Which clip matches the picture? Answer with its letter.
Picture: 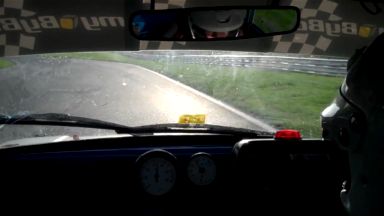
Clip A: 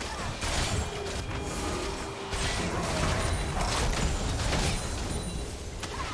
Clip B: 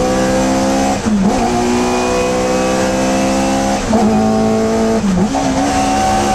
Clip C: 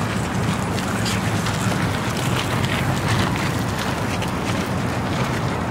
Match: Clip B